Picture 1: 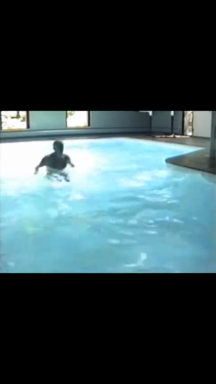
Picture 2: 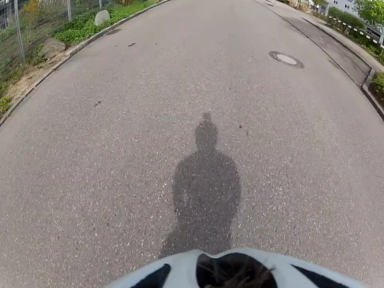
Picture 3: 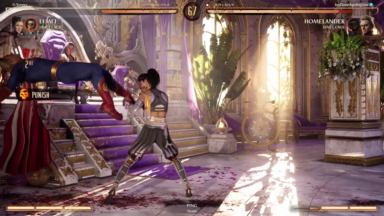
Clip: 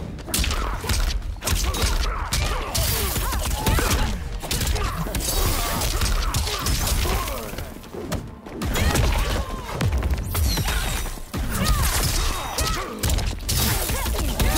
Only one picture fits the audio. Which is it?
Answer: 3